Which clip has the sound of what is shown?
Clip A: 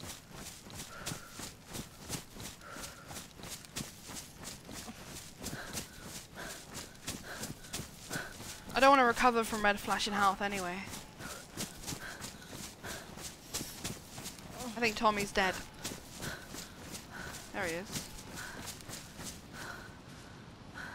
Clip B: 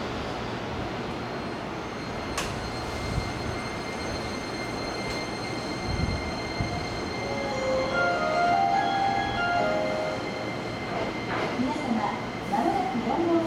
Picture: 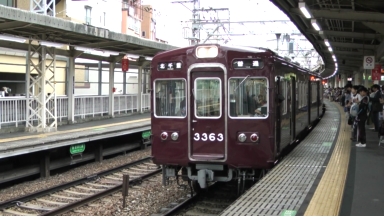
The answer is B